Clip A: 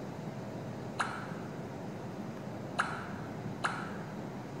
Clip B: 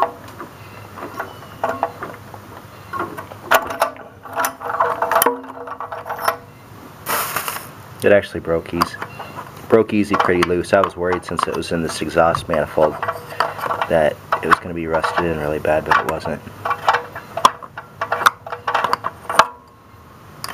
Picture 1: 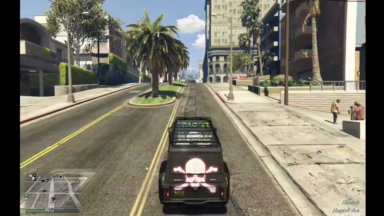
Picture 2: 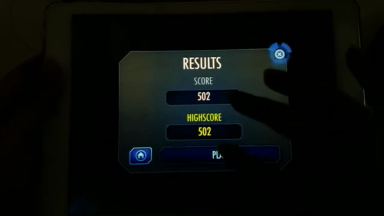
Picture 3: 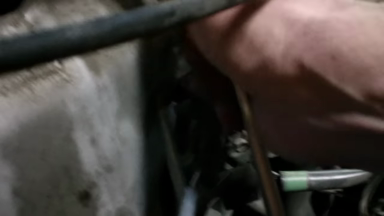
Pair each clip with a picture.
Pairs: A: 2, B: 3